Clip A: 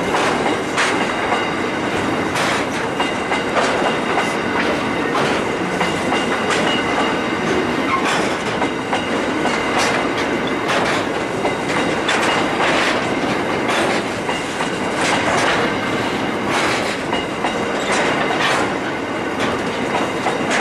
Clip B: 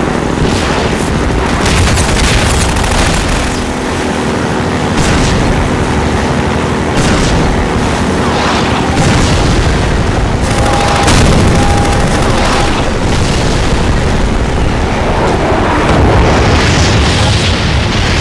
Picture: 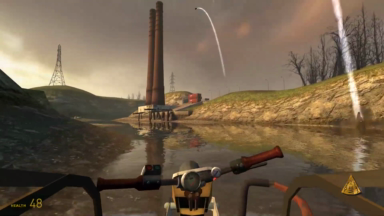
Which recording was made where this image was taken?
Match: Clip B